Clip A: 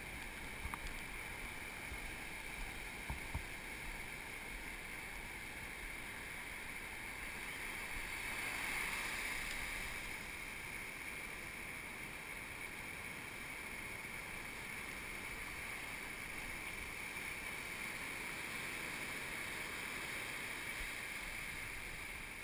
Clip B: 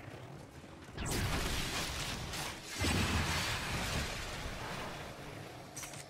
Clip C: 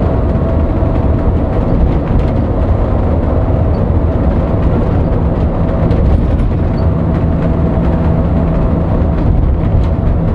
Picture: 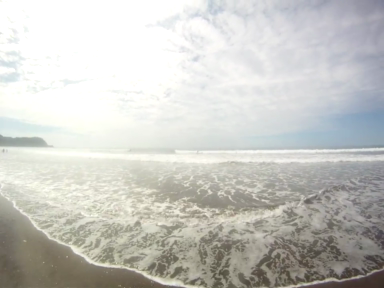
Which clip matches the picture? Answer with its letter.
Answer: A